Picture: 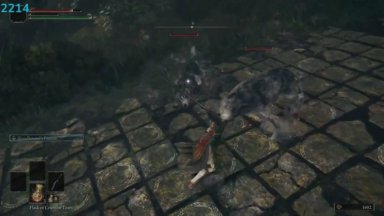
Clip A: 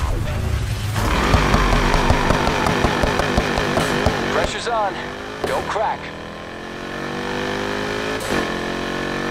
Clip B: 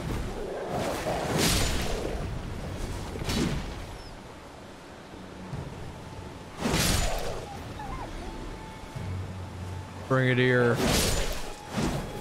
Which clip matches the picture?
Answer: B